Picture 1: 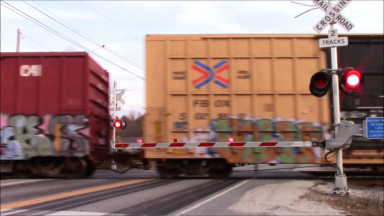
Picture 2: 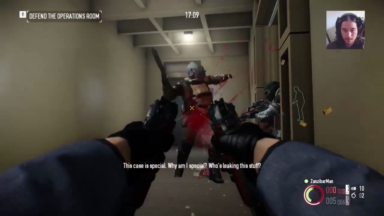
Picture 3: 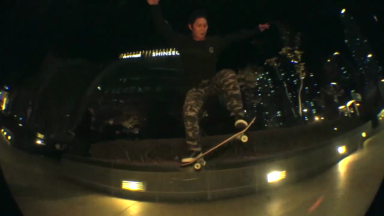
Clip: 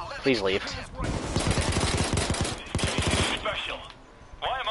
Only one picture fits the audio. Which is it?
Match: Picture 2